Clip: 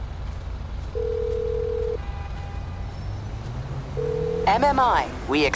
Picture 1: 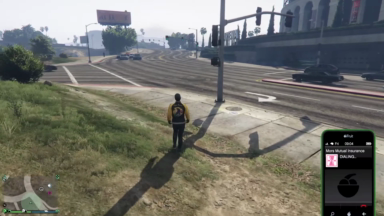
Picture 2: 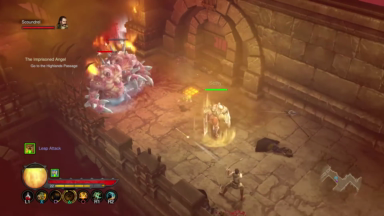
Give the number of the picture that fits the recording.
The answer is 1